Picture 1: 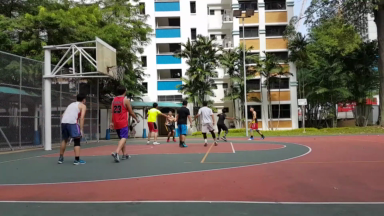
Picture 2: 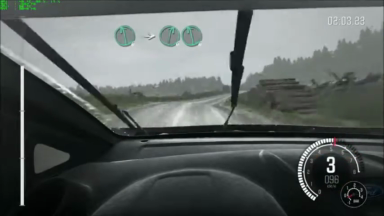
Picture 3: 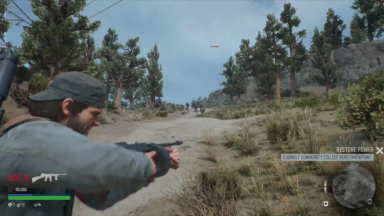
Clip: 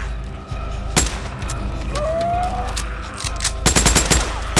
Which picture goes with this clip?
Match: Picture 3